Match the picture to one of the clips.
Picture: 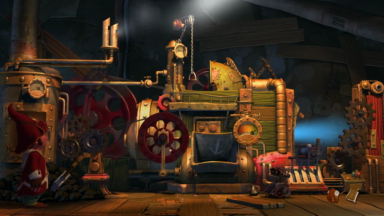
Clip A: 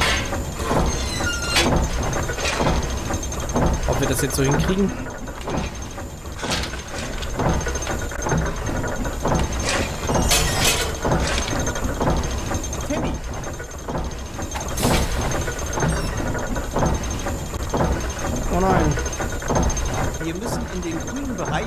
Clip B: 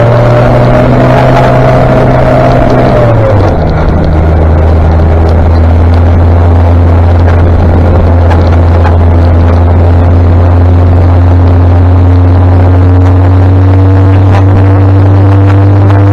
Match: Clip A